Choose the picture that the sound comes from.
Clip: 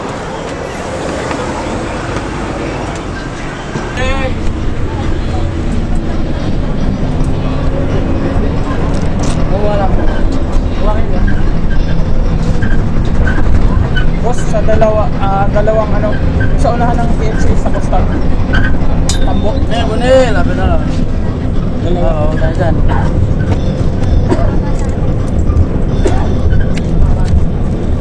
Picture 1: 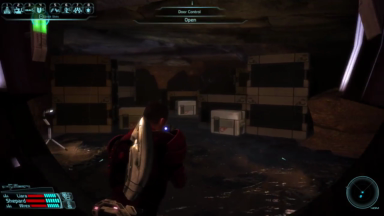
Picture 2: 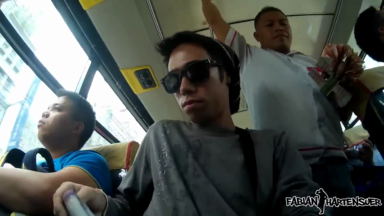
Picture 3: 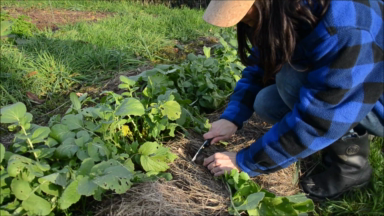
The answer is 2